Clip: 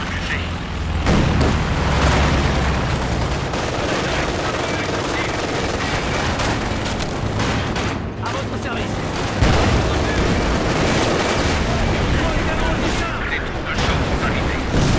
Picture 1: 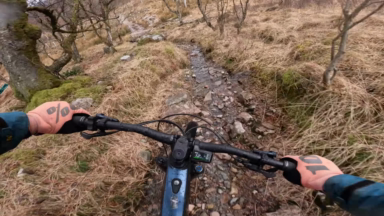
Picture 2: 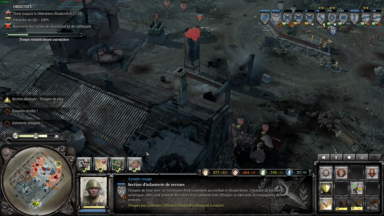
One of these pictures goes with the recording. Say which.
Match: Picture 2